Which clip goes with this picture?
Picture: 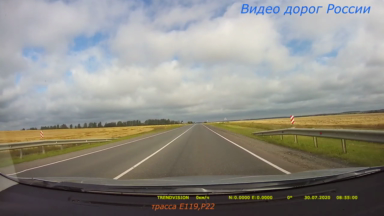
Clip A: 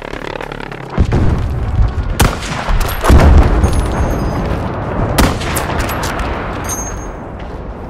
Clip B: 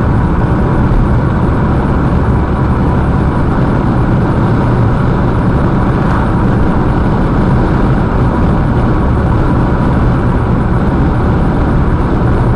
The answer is B